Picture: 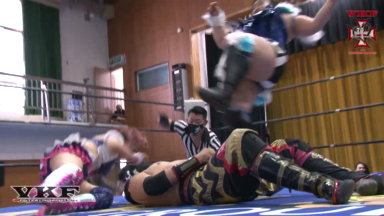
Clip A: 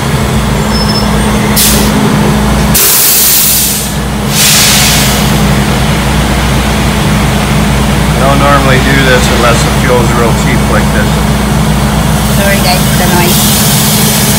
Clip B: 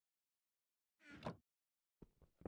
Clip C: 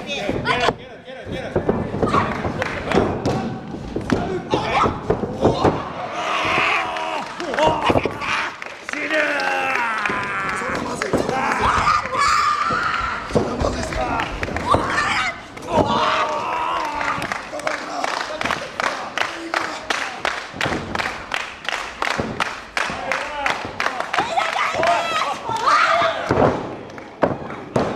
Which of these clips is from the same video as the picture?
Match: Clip C